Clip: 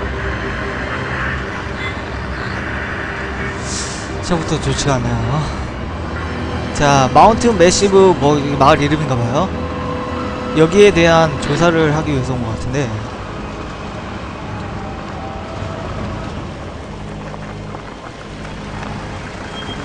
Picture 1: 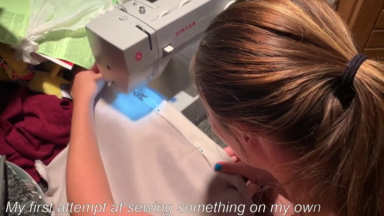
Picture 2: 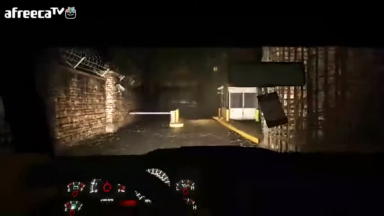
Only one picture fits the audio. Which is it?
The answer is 2